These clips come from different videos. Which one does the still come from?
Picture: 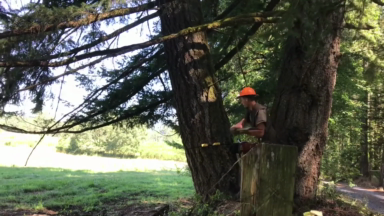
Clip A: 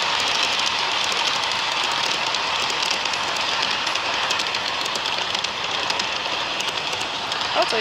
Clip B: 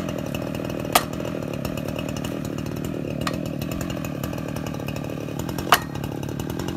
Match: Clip B